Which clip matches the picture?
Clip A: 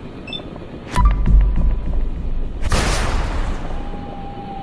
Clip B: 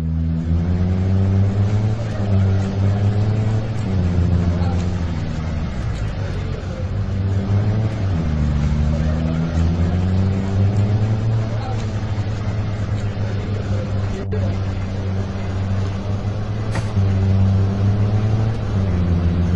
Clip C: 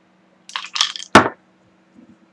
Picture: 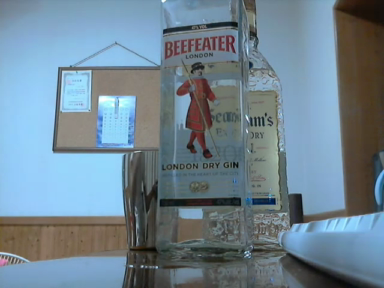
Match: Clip C